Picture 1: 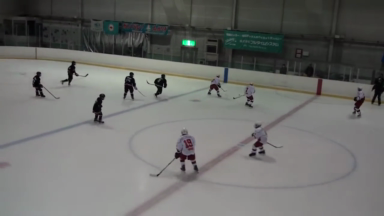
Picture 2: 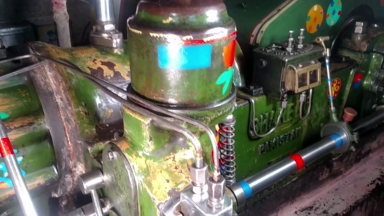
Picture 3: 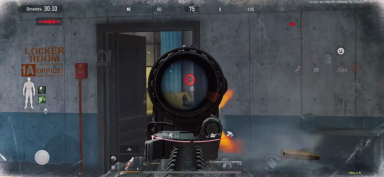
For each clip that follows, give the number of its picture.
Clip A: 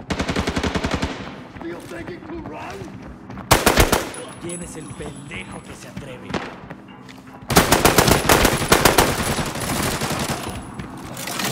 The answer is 3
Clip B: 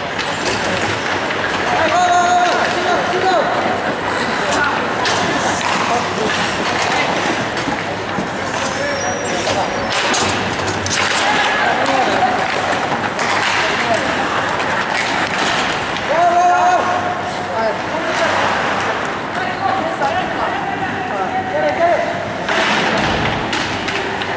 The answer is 1